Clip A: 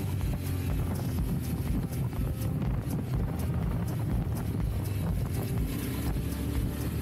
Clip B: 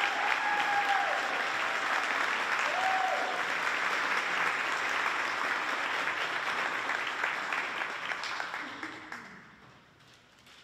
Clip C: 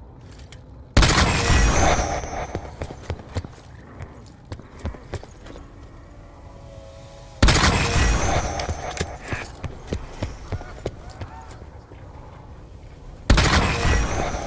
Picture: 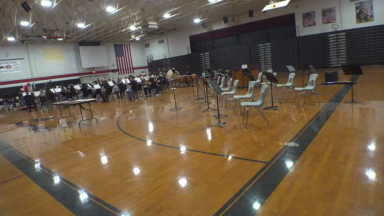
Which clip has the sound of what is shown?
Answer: B